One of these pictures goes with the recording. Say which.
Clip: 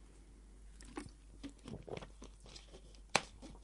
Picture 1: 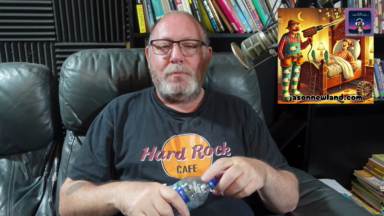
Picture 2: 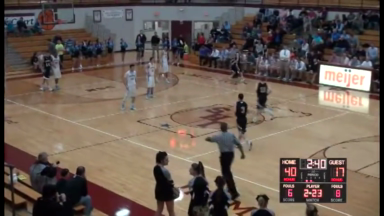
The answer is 1